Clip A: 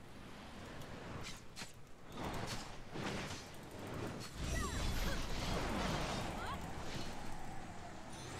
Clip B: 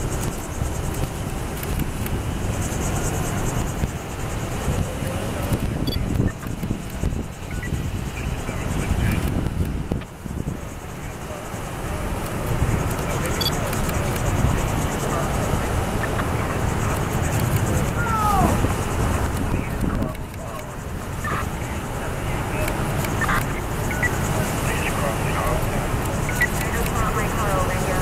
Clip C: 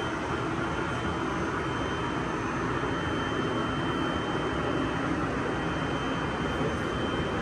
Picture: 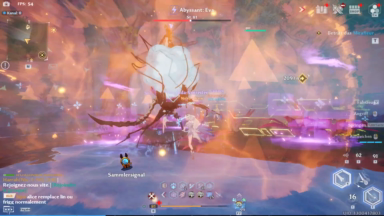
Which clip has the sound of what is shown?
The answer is A